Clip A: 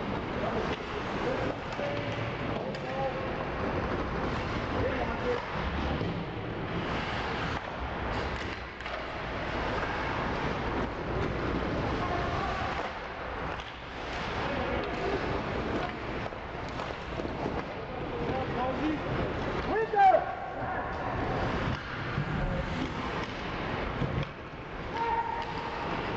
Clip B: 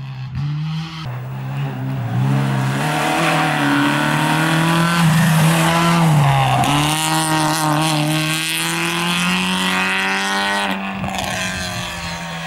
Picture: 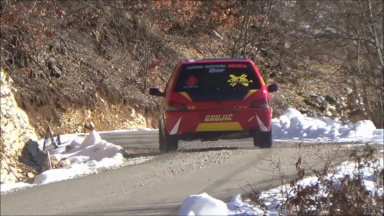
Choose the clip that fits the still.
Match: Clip B